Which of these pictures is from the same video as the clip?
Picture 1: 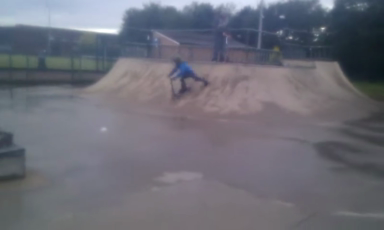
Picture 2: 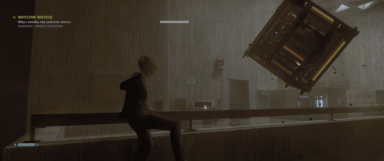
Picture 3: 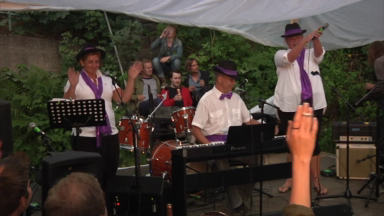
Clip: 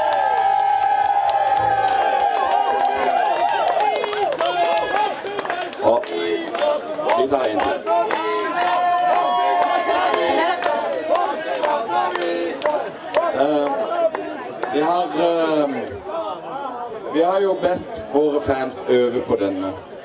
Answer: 3